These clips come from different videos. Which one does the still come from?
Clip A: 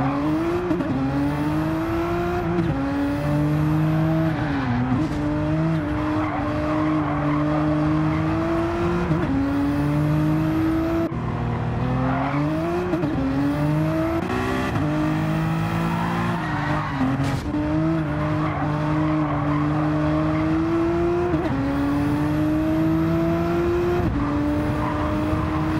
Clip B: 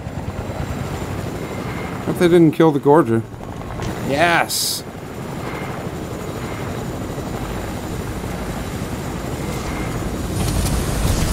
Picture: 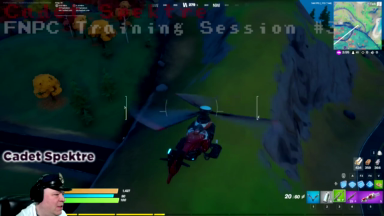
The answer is B